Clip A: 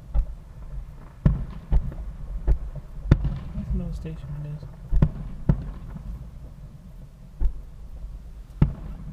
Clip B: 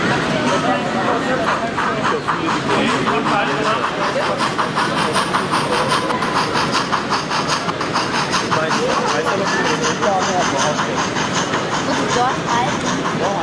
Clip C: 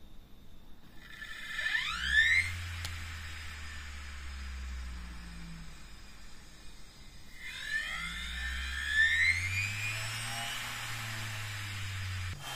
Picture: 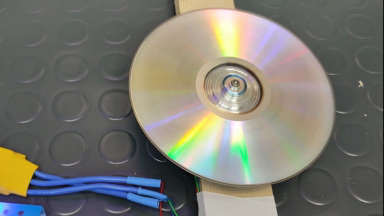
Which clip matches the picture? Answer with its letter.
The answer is C